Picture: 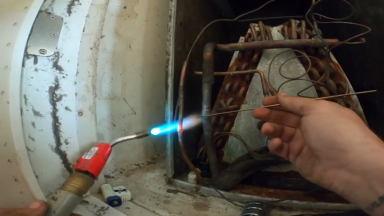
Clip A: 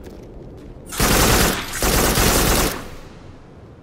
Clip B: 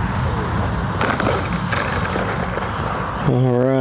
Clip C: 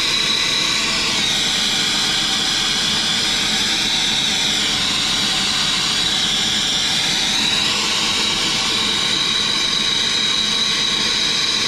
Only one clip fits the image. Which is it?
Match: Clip C